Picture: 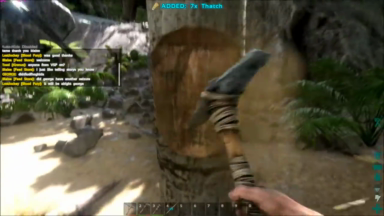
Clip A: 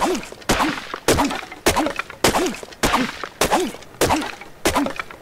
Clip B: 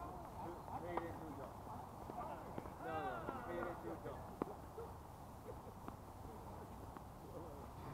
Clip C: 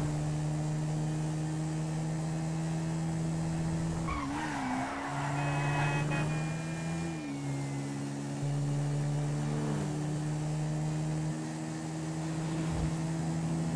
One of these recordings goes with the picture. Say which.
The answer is A